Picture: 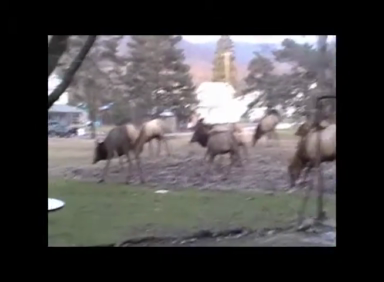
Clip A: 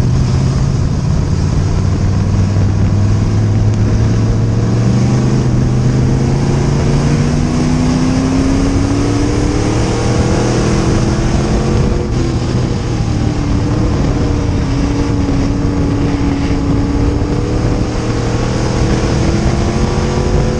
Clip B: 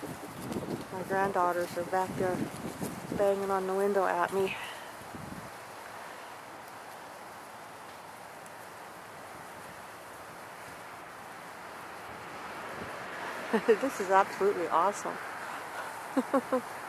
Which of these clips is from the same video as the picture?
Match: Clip B